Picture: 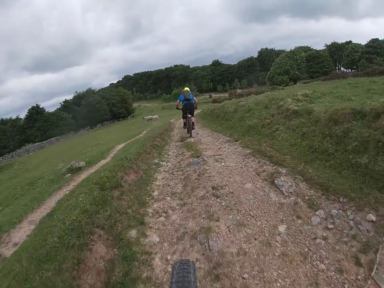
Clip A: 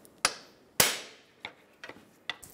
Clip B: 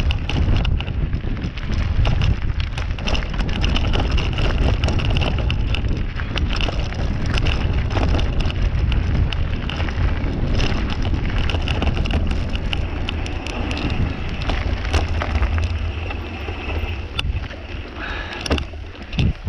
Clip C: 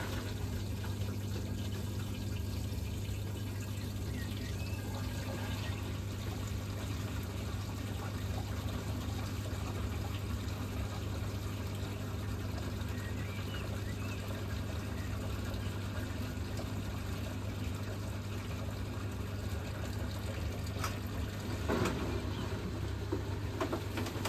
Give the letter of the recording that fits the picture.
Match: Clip B